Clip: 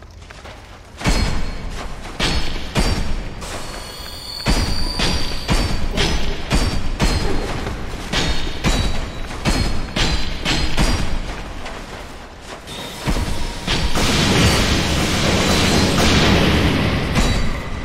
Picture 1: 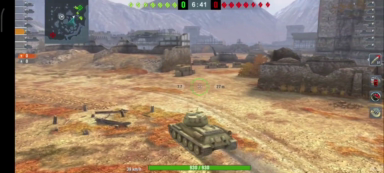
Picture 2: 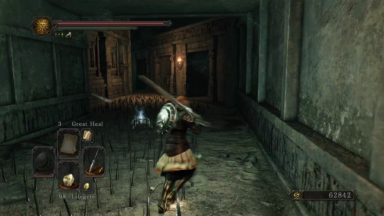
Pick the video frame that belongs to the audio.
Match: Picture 2